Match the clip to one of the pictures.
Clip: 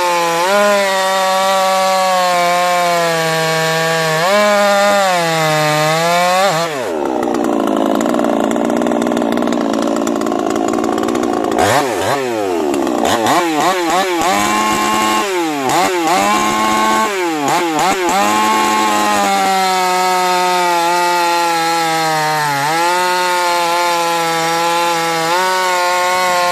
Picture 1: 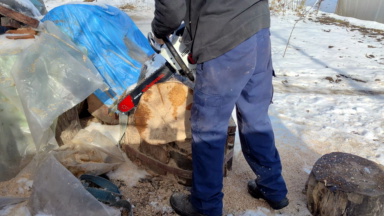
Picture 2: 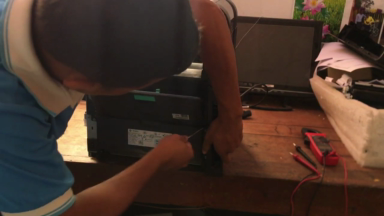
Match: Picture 1